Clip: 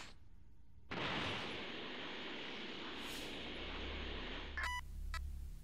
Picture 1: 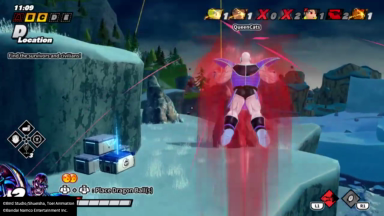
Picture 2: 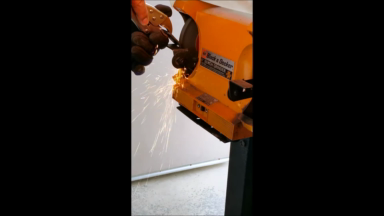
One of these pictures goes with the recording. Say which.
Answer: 1